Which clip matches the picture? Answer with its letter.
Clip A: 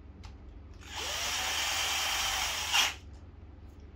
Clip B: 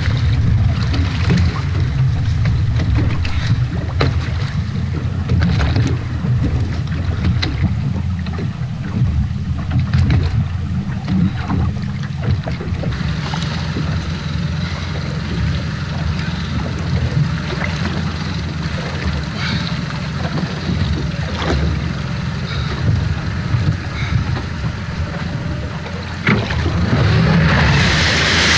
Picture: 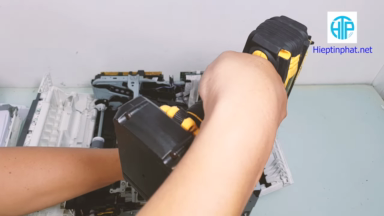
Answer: A